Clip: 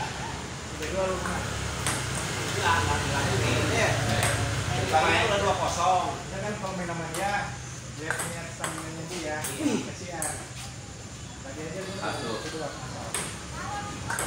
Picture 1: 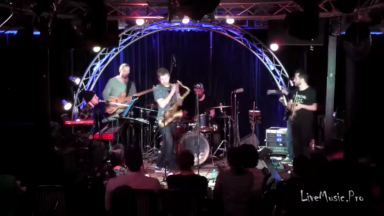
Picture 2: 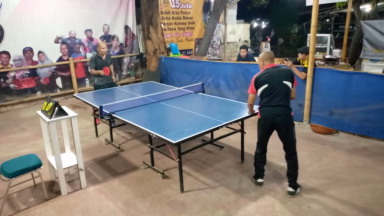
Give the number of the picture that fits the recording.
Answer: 2